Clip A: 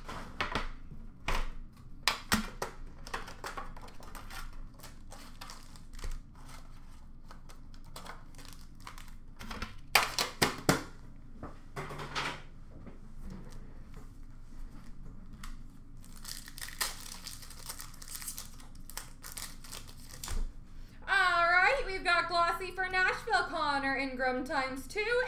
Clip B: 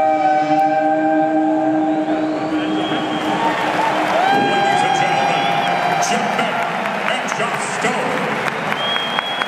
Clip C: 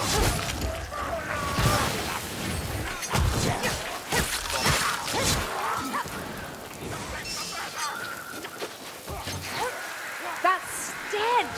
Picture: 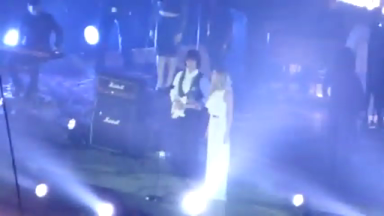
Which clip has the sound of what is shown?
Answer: B